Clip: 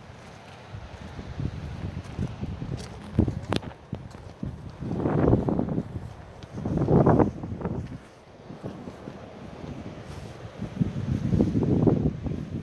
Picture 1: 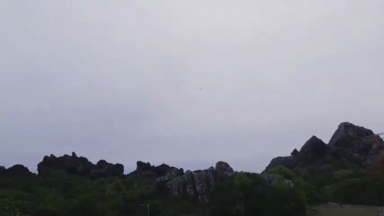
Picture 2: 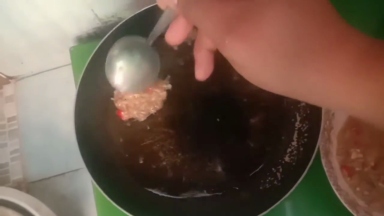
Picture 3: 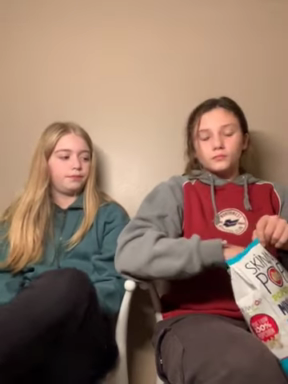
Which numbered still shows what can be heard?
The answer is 1